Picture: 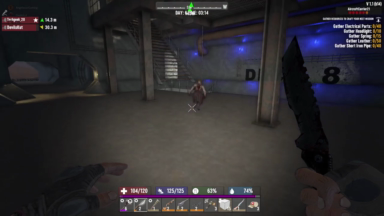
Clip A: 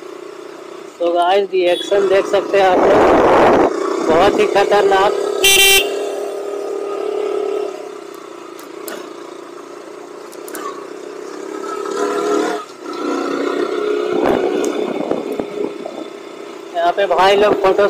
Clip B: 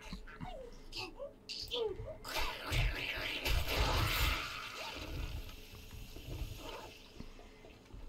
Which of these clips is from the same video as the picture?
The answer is B